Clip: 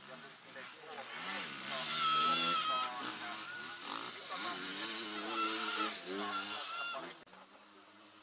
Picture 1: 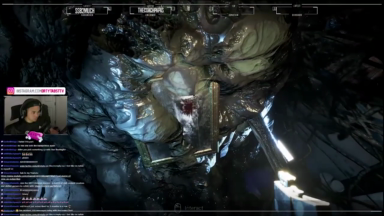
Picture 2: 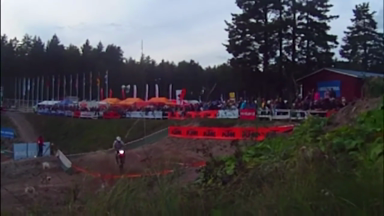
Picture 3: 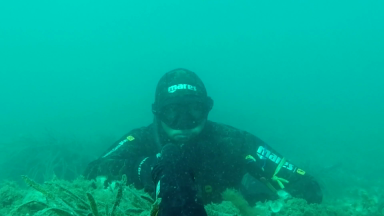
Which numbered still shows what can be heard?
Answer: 2